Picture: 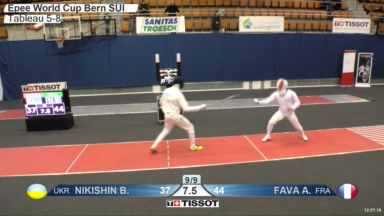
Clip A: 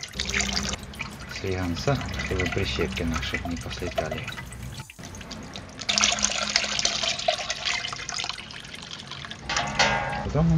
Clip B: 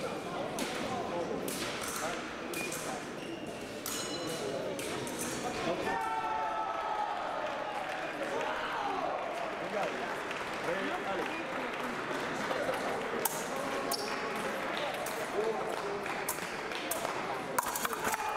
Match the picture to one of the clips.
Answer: B